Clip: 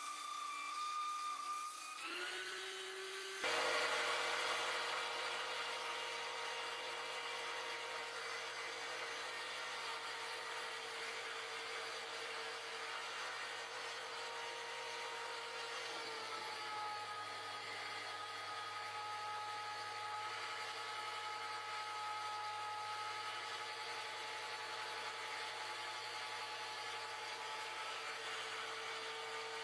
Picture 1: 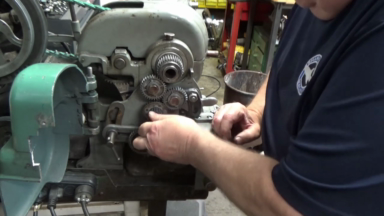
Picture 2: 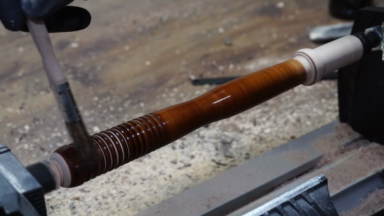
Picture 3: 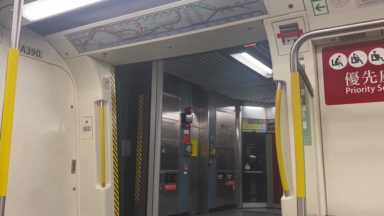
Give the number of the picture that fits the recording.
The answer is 2